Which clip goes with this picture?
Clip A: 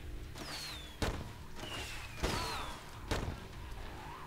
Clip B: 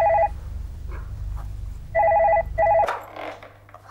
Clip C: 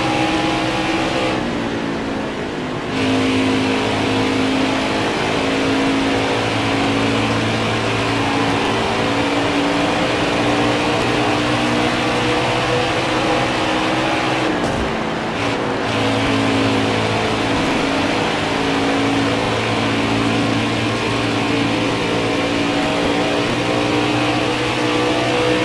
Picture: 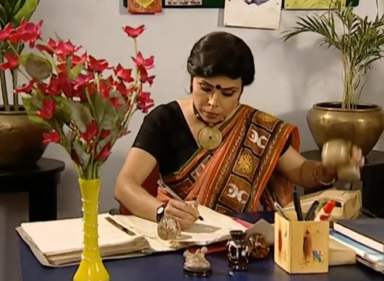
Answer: B